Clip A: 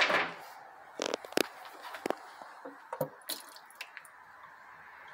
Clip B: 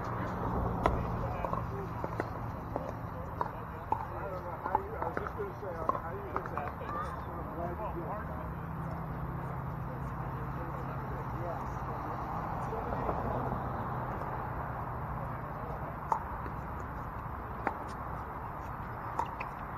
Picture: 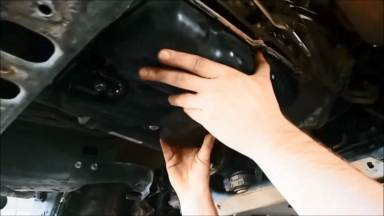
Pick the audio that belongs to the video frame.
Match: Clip A